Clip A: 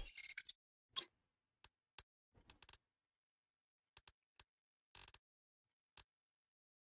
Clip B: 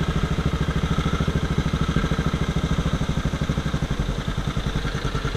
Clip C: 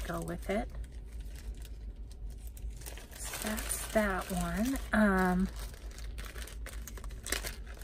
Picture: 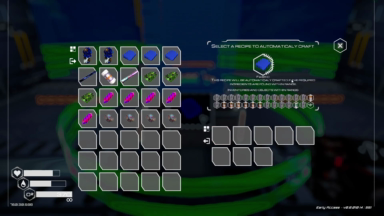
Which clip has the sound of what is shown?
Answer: A